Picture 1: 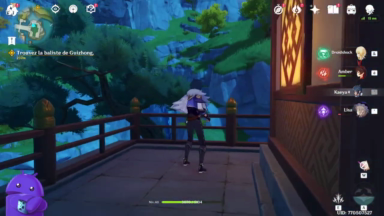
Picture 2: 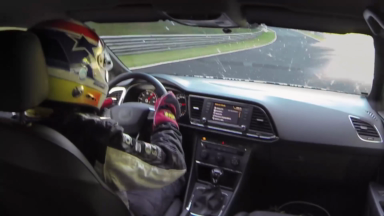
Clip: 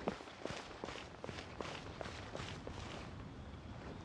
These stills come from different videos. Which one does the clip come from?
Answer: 1